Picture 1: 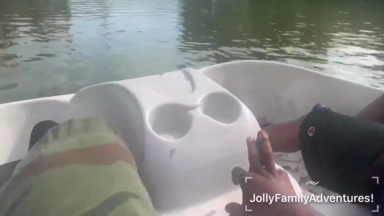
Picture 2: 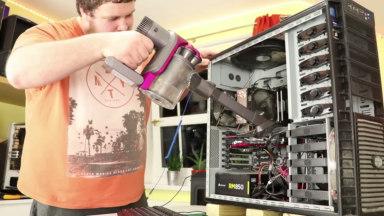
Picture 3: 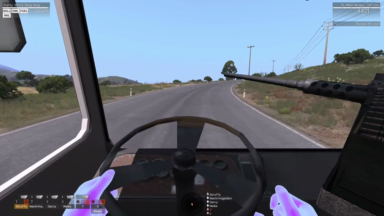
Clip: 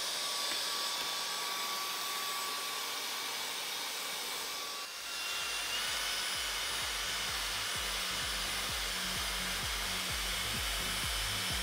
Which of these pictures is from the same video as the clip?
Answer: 2